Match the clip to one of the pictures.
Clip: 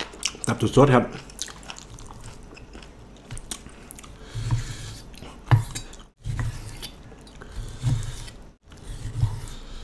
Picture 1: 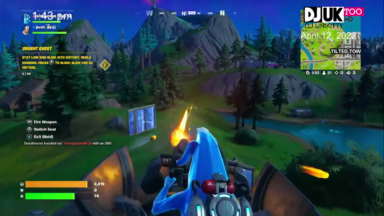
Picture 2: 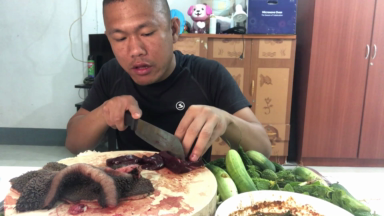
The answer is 2